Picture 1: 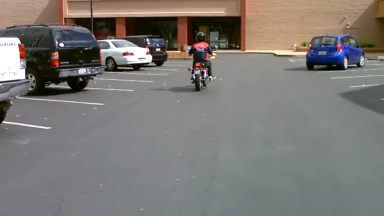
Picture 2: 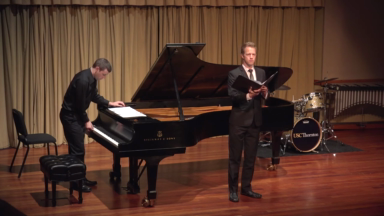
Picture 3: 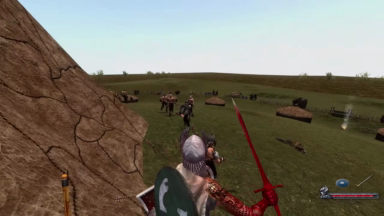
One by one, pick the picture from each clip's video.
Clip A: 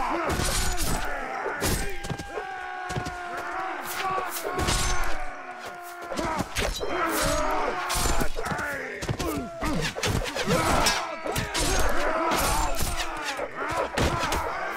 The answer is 3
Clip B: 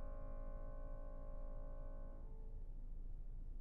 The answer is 2